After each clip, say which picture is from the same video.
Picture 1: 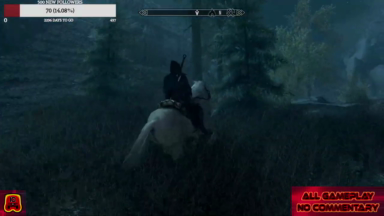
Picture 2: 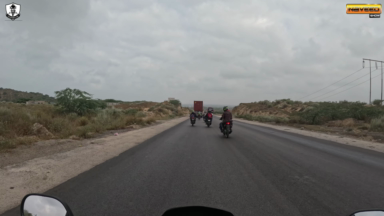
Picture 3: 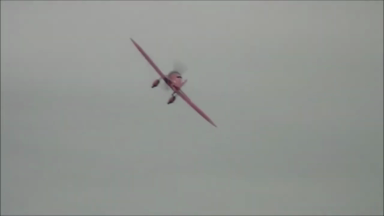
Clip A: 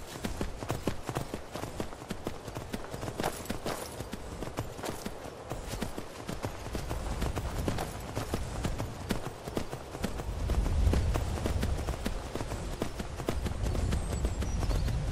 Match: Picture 1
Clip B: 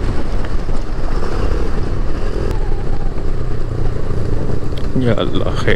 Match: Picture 2